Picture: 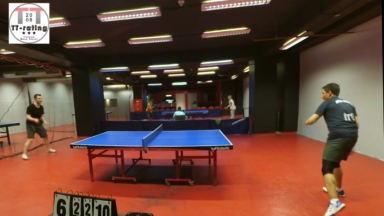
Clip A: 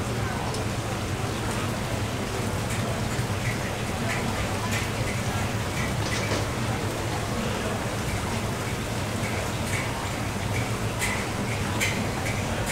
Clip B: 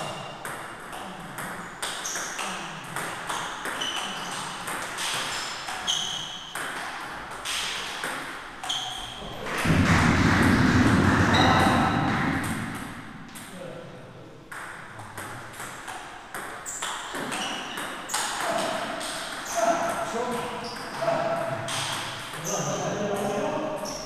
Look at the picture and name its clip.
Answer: B